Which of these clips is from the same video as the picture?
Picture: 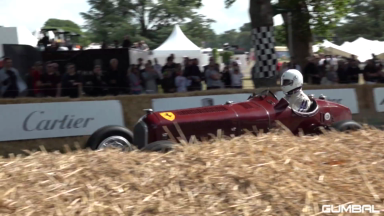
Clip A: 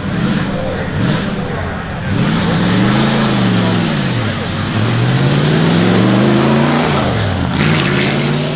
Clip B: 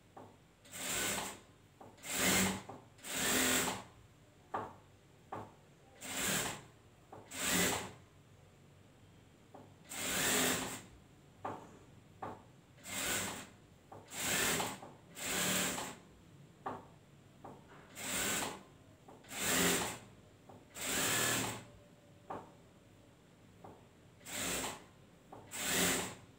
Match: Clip A